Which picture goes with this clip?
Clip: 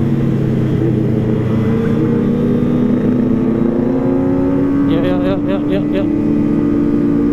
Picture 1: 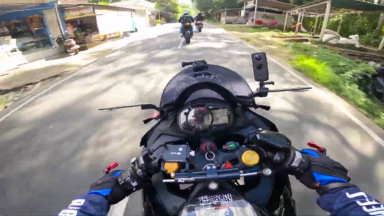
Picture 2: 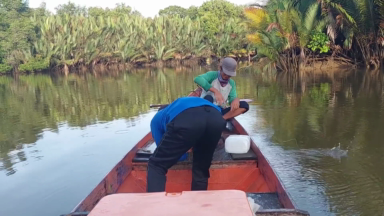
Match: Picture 1